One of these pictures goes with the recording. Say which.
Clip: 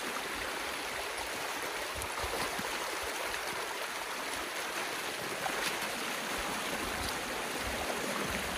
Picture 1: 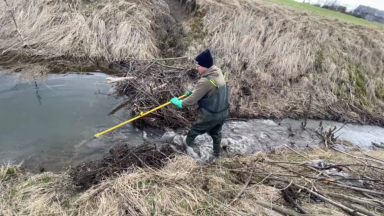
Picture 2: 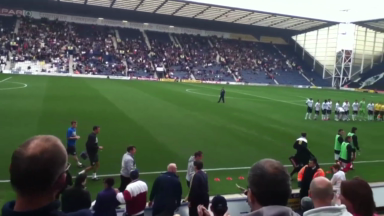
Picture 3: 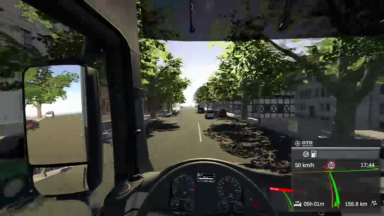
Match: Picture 1